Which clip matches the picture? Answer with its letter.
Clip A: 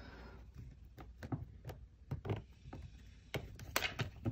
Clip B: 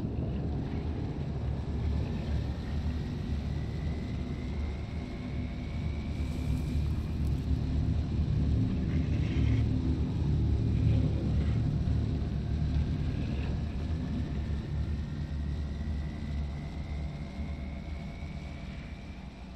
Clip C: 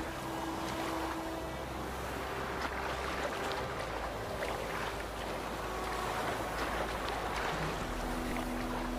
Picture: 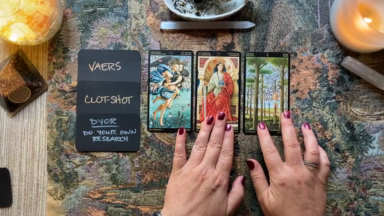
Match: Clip A